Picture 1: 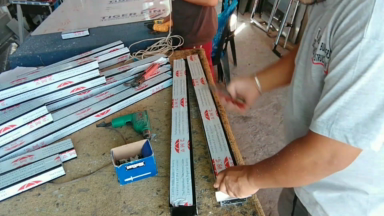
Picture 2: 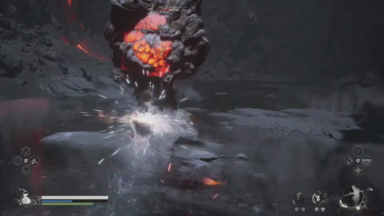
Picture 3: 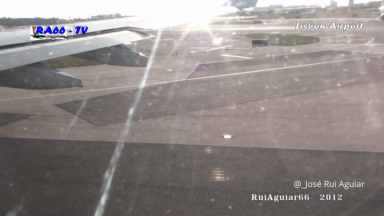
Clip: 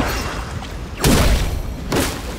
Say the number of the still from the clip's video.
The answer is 2